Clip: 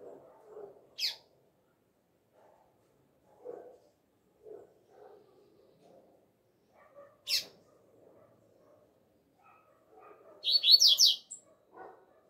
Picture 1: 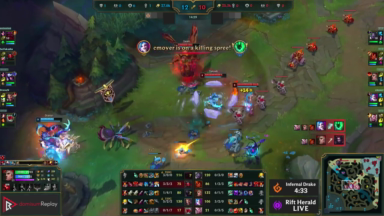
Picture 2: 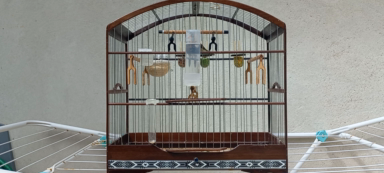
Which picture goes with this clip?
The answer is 2